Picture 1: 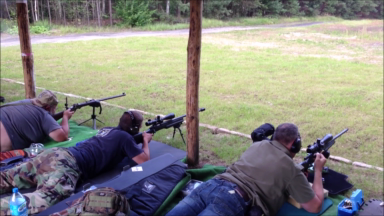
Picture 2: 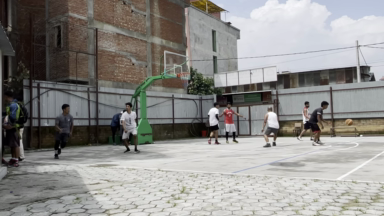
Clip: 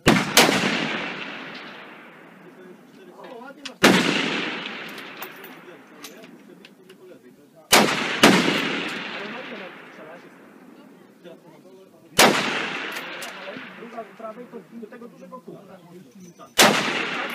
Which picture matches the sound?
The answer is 1